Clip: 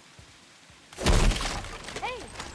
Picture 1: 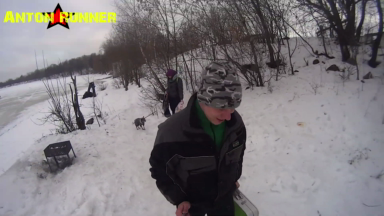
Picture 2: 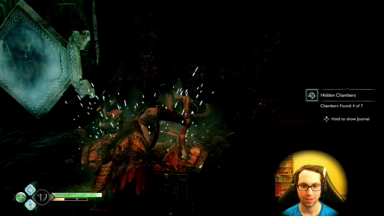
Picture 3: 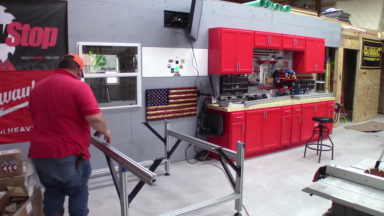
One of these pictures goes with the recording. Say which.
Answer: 2